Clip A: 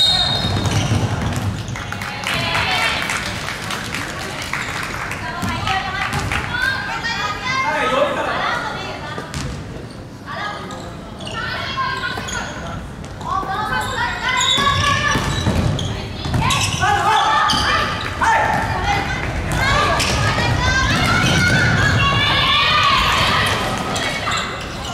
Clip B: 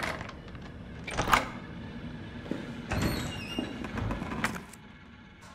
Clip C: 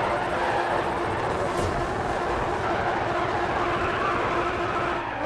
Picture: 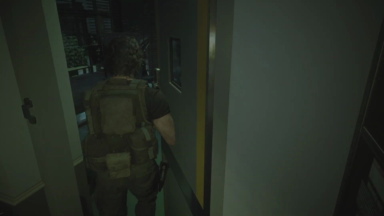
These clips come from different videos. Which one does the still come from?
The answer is B